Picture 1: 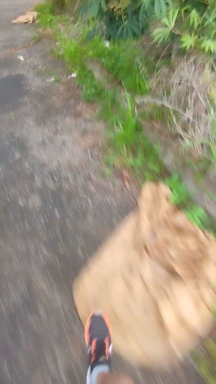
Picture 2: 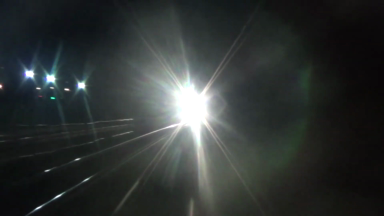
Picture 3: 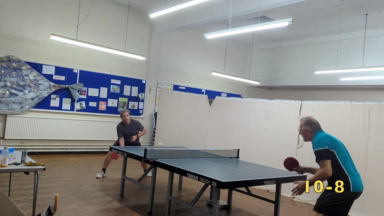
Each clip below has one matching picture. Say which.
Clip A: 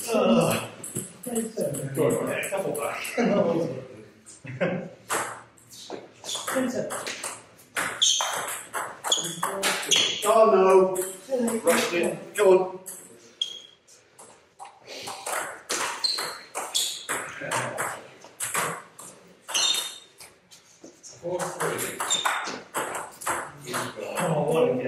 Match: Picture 3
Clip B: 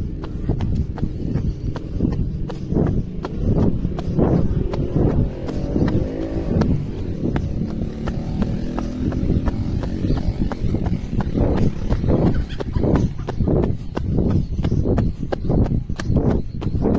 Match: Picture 1